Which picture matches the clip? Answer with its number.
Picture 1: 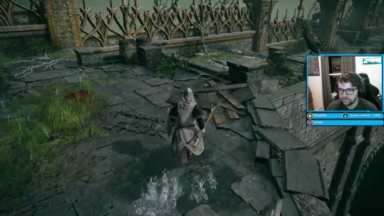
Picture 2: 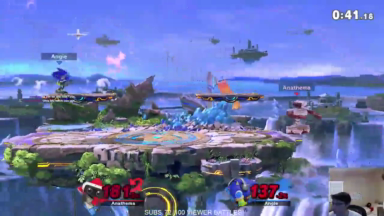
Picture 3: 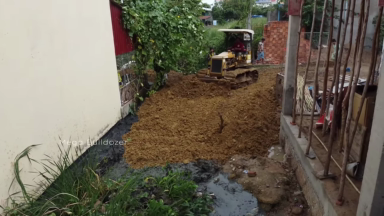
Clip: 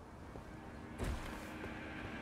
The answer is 1